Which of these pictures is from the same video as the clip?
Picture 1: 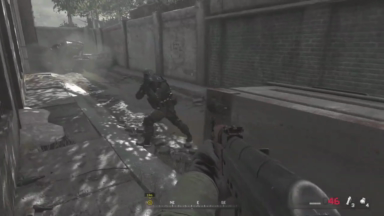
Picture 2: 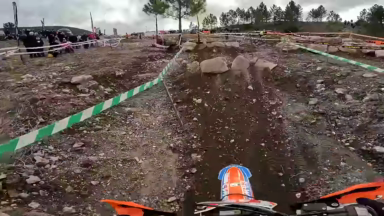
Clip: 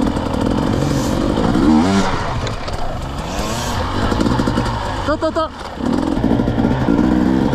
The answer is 2